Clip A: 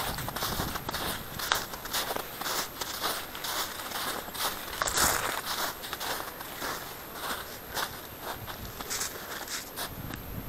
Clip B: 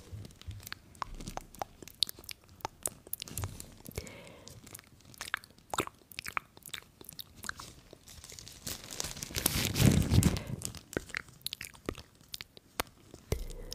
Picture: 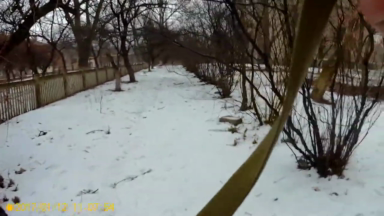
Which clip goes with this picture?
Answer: A